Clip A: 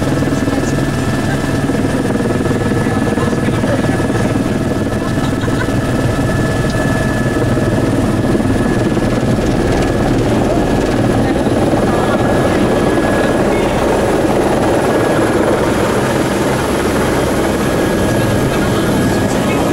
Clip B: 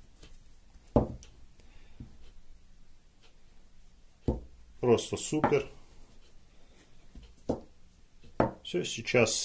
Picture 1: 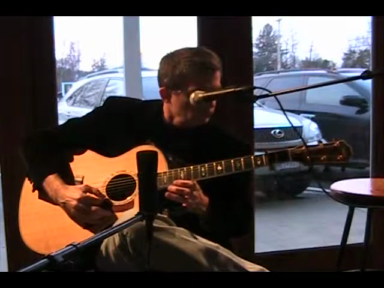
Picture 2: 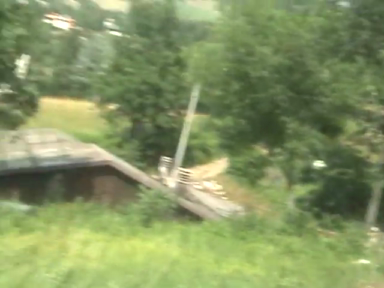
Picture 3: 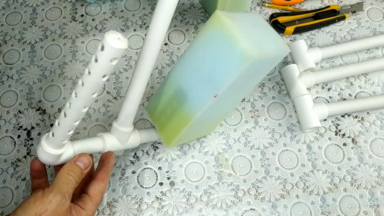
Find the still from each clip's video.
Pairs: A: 2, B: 3